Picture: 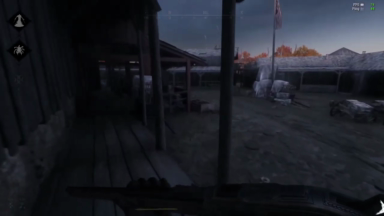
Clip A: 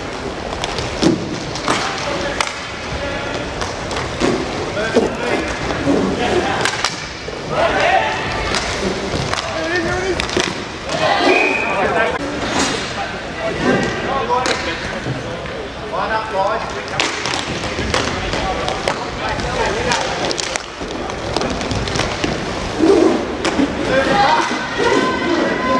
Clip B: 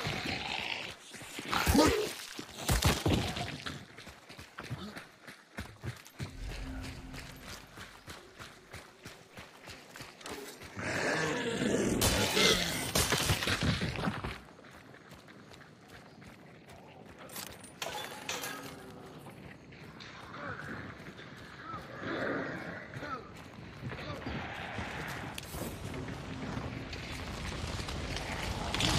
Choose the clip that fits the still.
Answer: B